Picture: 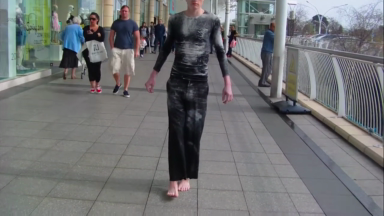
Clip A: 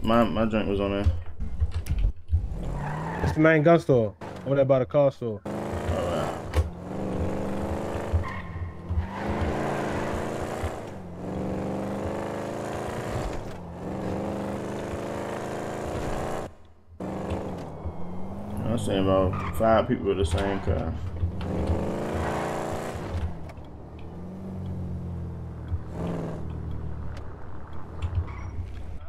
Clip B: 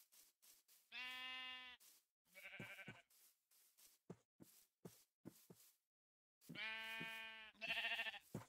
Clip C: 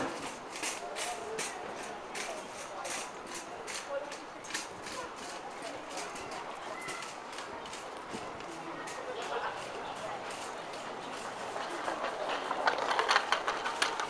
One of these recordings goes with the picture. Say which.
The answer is C